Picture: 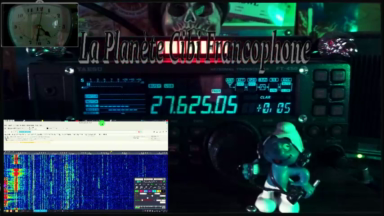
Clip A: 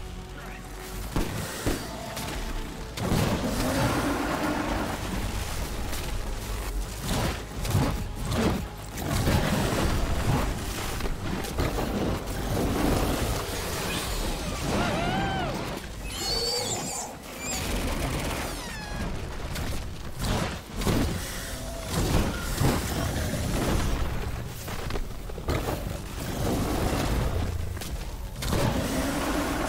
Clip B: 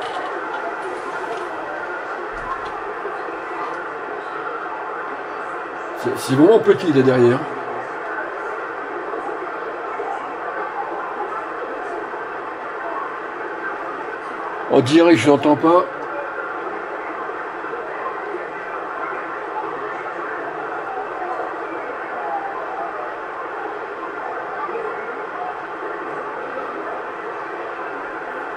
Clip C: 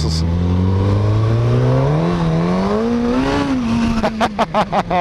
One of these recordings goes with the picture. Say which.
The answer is B